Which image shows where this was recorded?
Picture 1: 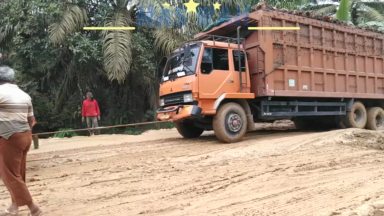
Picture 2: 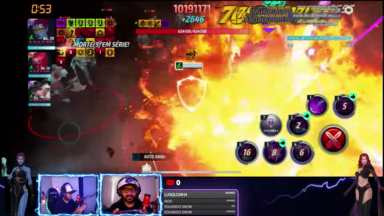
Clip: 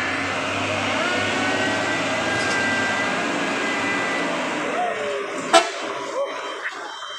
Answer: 1